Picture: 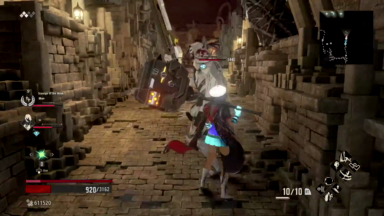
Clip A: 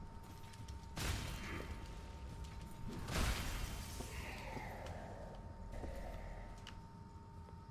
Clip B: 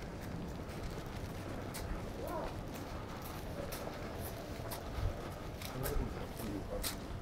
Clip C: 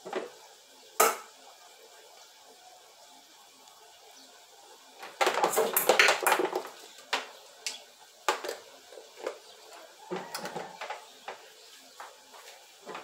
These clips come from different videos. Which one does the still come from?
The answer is A